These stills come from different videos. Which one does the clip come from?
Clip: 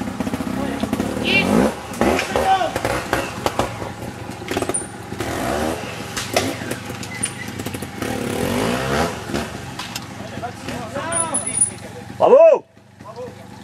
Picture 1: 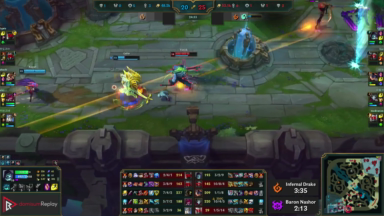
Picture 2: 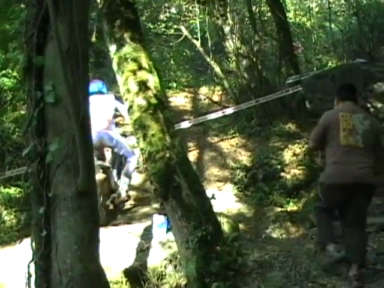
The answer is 2